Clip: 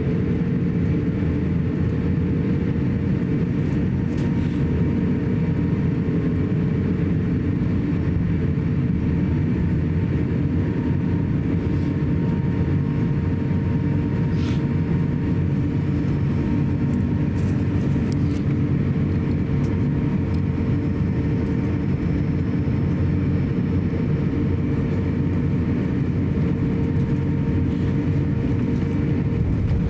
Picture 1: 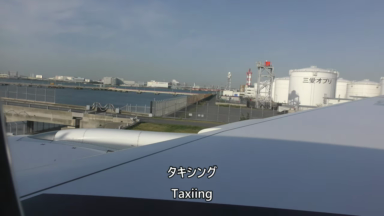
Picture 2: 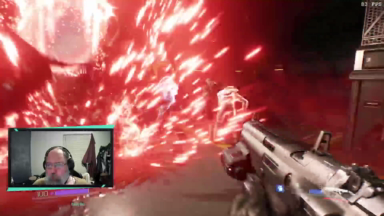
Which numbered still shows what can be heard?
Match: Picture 1